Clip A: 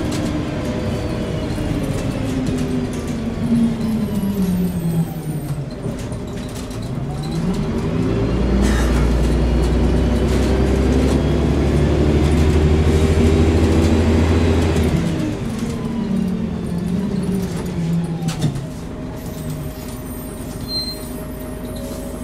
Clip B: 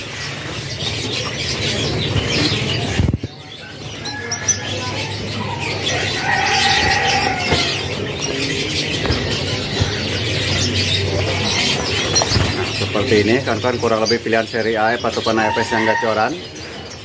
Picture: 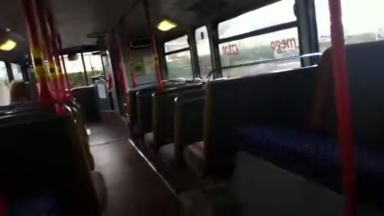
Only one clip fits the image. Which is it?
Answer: A